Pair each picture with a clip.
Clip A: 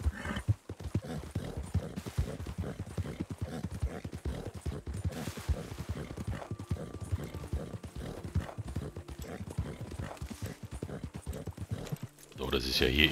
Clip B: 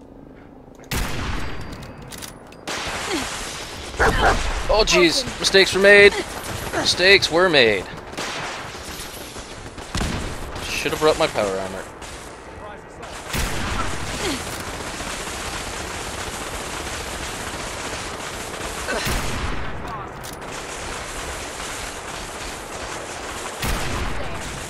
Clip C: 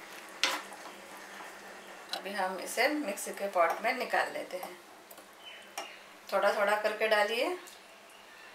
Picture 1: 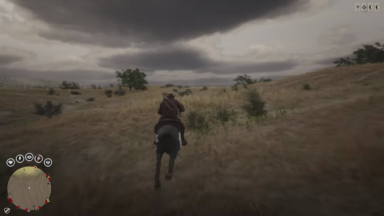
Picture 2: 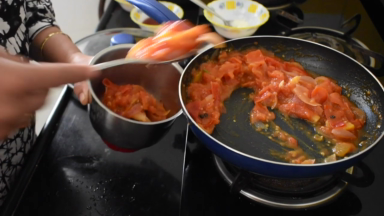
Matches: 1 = A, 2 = C